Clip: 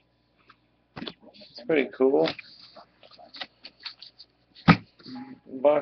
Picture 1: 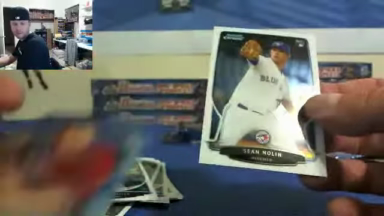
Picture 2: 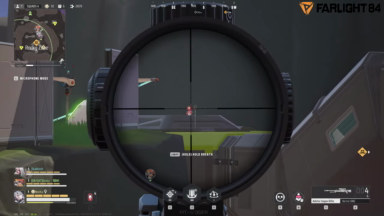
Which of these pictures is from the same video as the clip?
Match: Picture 1